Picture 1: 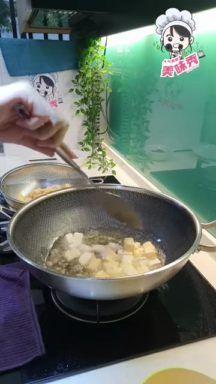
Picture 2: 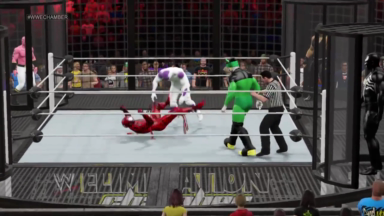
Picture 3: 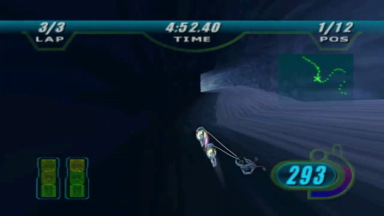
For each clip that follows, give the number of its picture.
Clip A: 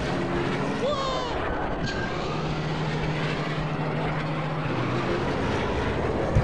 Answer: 3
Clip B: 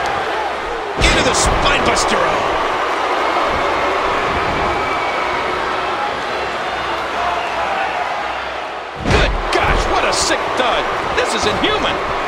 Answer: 2